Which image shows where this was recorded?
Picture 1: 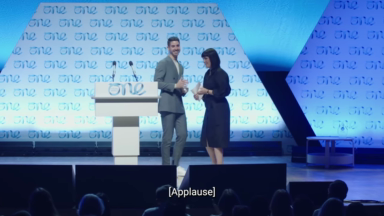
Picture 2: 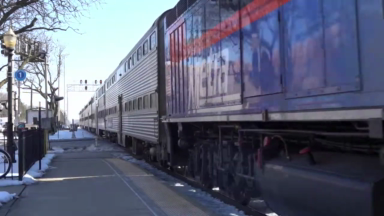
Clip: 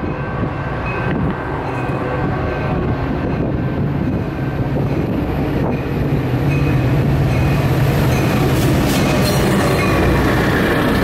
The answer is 2